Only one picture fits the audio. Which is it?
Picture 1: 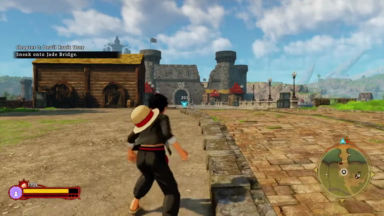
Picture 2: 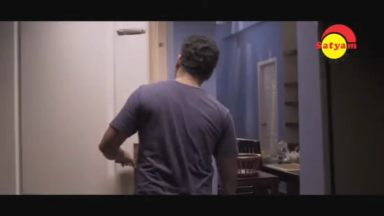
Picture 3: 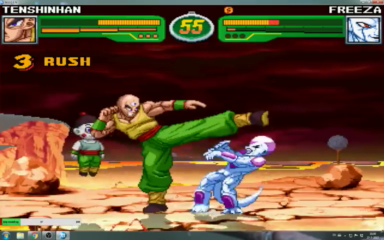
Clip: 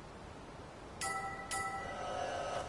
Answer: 1